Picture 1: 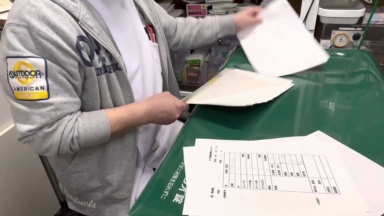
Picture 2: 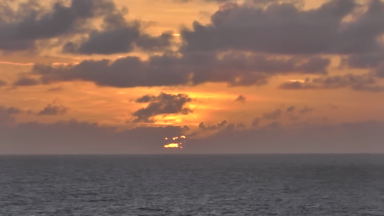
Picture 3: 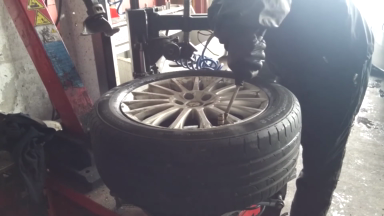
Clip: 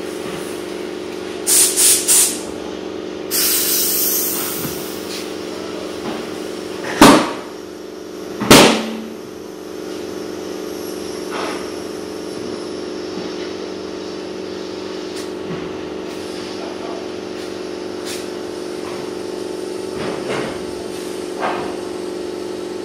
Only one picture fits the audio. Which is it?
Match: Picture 3